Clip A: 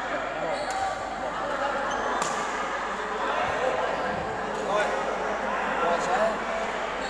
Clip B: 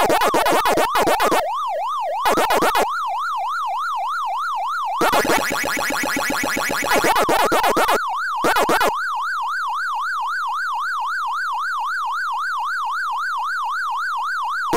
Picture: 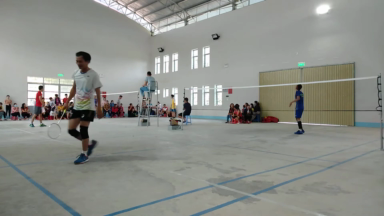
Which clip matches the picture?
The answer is A